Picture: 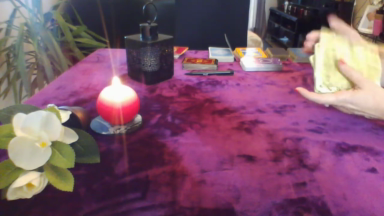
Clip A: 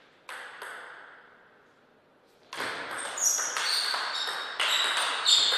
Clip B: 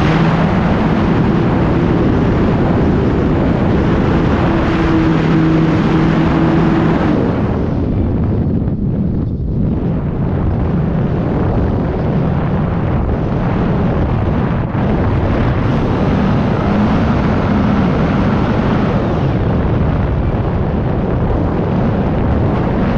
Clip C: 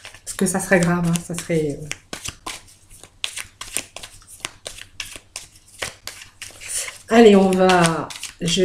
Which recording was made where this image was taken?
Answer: C